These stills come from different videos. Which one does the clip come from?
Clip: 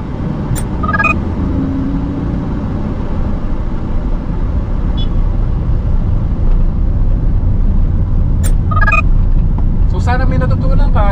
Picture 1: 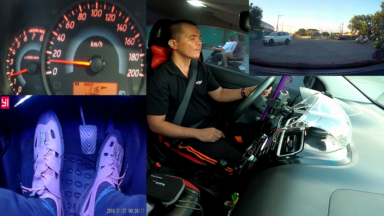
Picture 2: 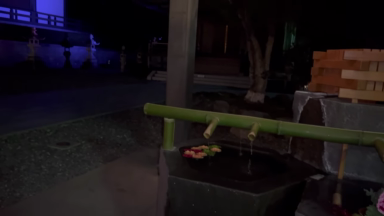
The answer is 1